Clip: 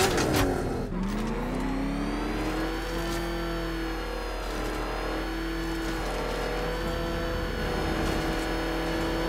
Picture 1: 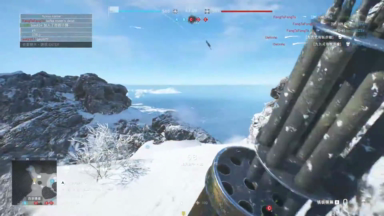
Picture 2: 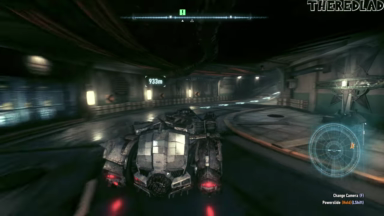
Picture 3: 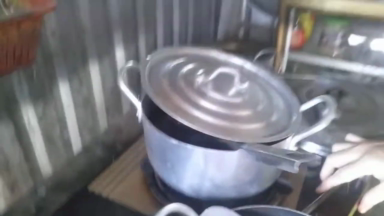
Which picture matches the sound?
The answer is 2